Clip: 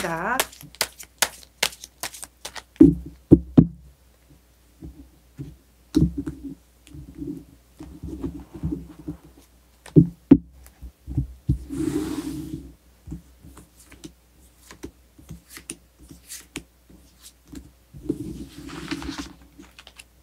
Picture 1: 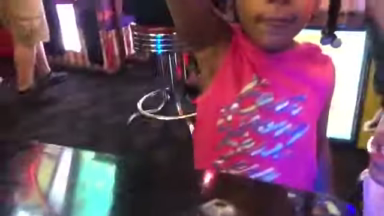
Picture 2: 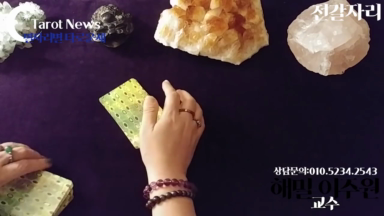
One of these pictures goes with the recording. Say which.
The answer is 2